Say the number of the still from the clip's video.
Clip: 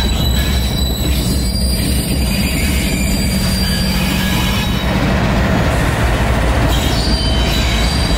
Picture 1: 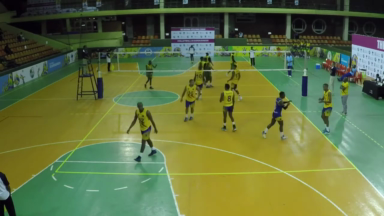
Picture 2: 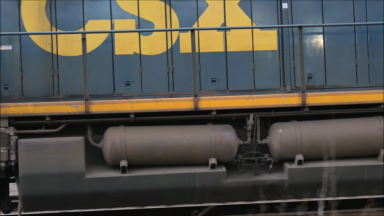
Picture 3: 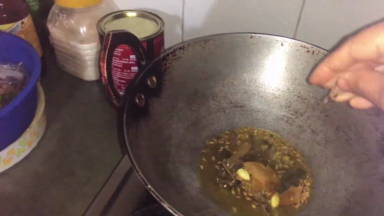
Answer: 2